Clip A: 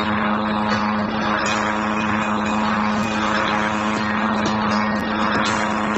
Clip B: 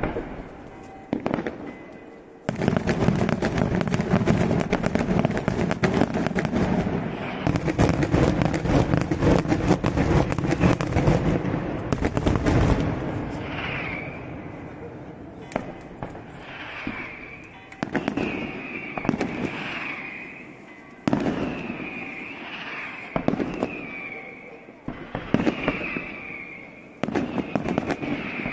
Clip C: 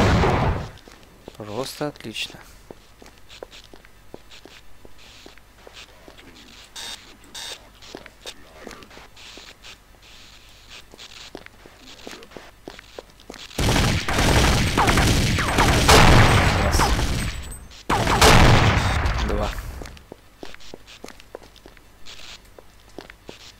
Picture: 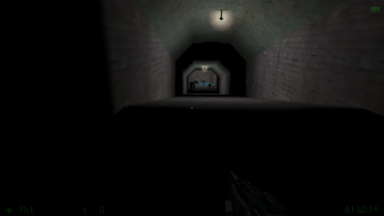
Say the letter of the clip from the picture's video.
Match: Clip C